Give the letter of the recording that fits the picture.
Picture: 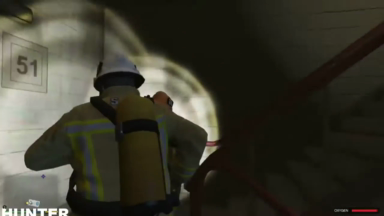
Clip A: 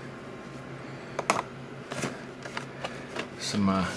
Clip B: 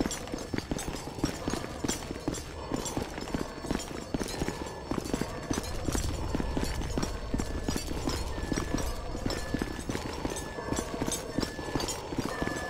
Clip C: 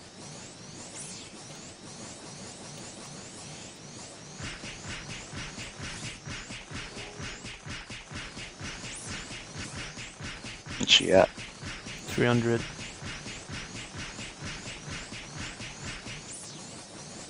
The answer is B